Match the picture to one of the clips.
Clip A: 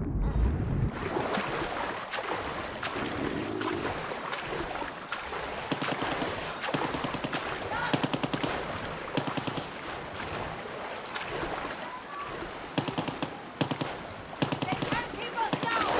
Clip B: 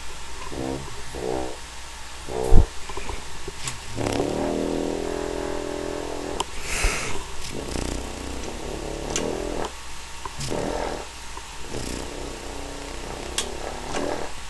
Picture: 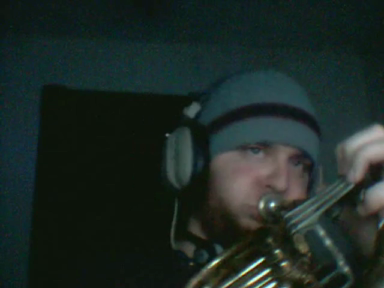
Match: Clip B